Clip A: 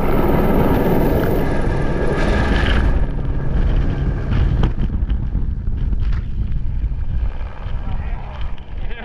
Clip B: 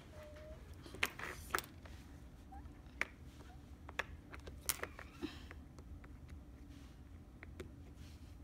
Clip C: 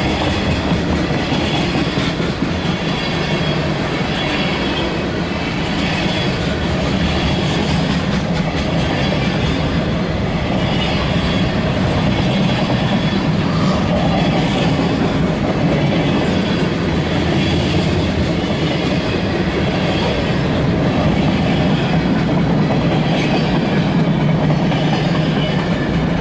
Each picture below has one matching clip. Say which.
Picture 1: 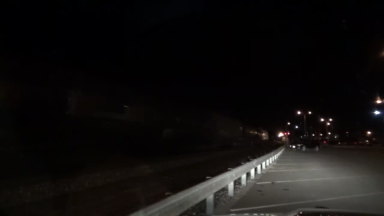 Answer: C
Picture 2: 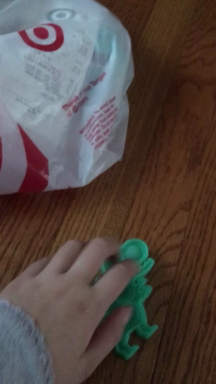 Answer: B